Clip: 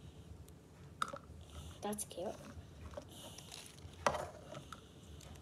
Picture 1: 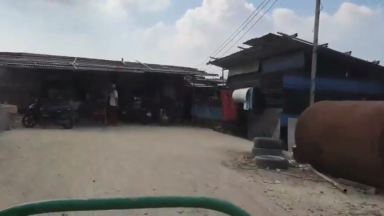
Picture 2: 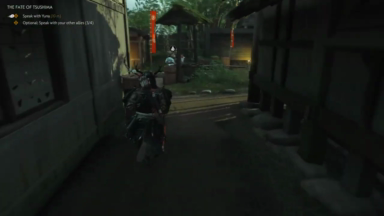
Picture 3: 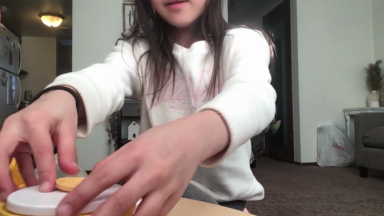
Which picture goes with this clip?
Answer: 3